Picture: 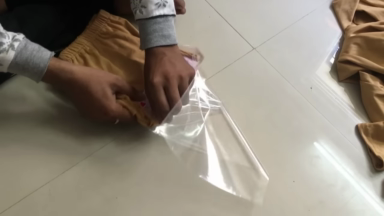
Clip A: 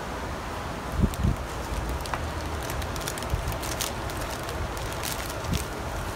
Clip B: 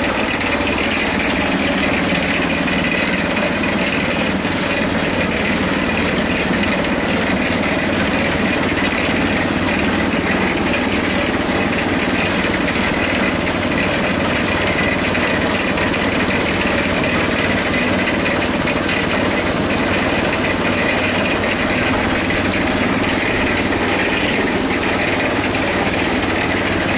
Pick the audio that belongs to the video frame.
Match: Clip A